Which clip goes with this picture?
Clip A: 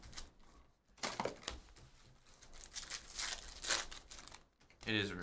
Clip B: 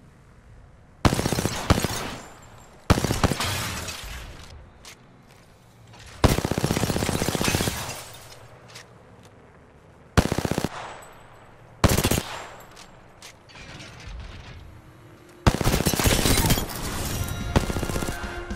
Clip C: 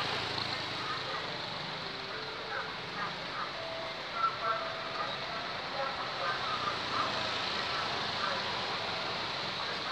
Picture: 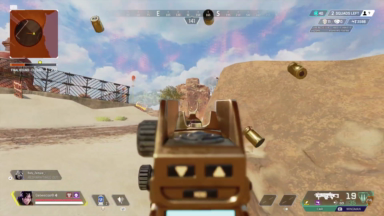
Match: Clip B